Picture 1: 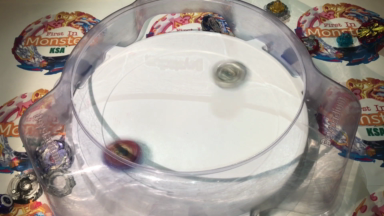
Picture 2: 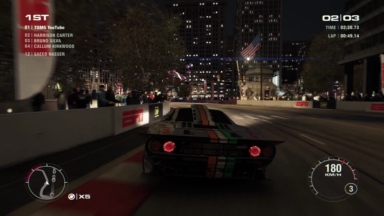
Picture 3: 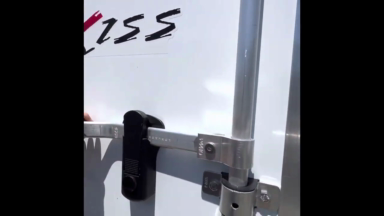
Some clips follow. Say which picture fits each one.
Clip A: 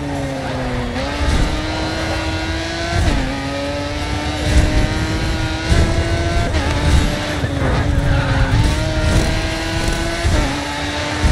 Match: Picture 2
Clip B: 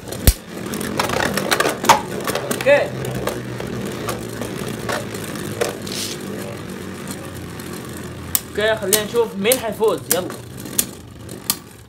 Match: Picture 1